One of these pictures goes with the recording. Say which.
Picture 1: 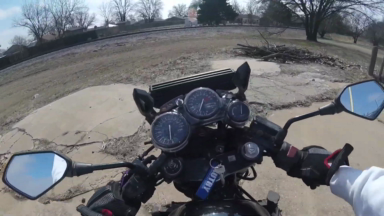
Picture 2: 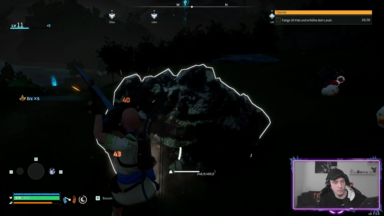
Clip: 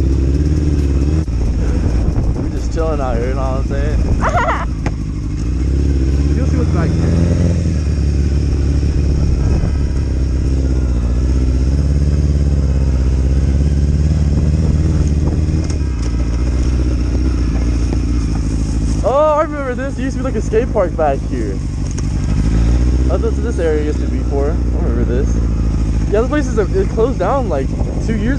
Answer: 1